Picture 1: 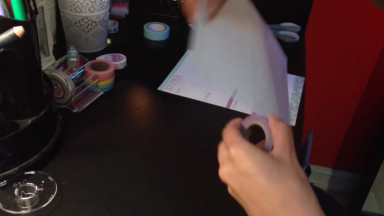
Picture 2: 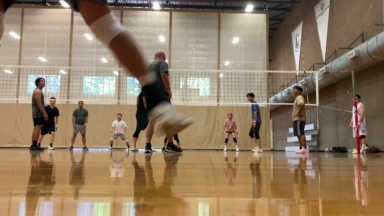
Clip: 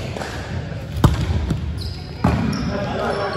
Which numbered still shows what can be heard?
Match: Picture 2